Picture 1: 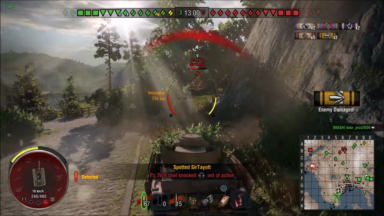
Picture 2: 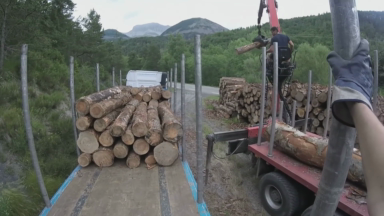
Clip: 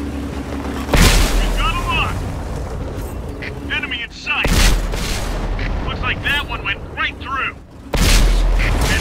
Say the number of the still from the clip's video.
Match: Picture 1